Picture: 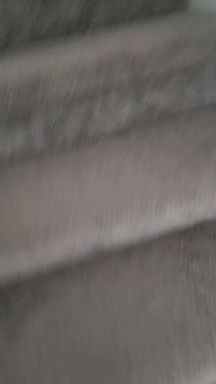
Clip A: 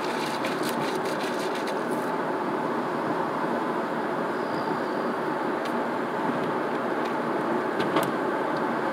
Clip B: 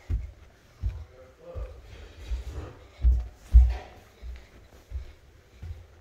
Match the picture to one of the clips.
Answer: B